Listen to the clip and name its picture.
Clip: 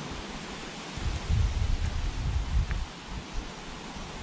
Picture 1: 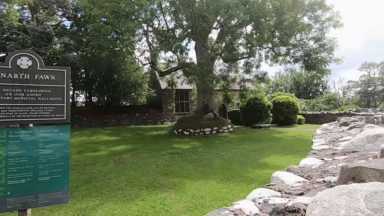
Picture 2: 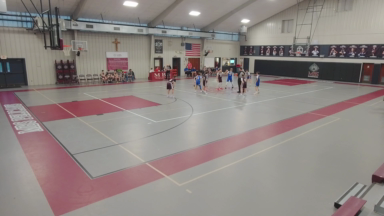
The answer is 1